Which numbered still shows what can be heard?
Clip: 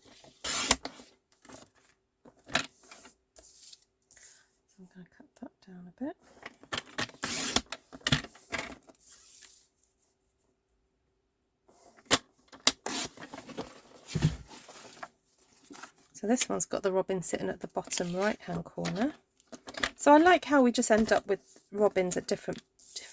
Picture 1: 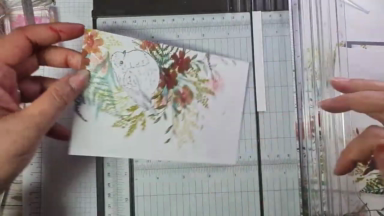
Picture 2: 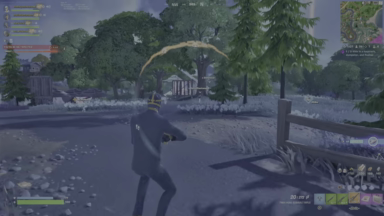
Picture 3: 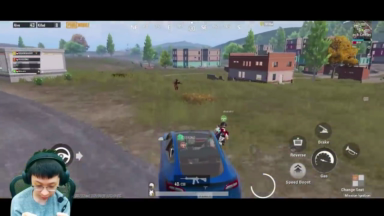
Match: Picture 1